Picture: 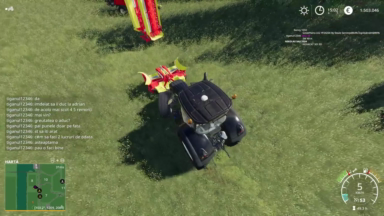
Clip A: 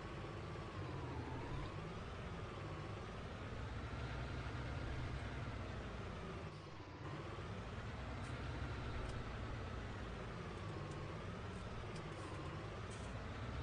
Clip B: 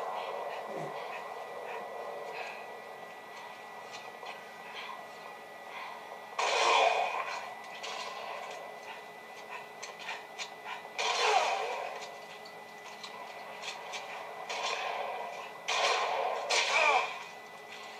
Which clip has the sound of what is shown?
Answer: A